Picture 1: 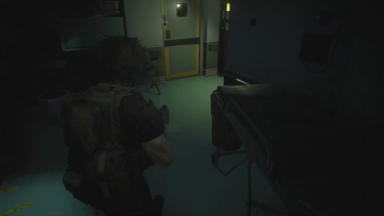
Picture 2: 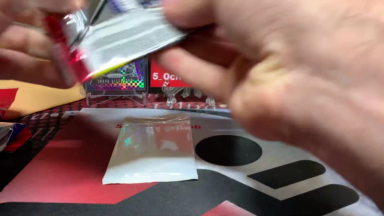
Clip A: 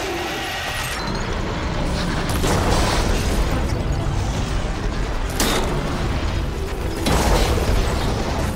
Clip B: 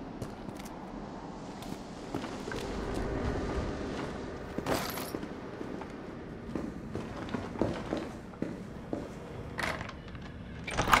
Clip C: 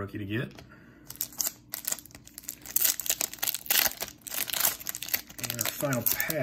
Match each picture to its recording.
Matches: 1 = B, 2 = C